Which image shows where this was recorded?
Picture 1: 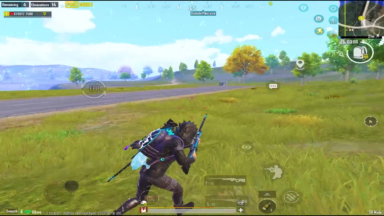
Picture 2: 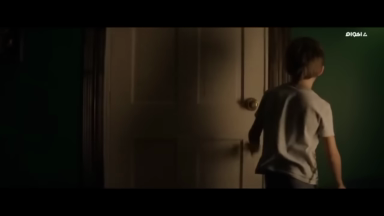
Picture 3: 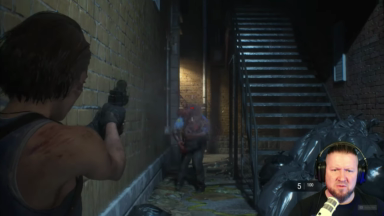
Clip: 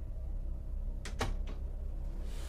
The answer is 2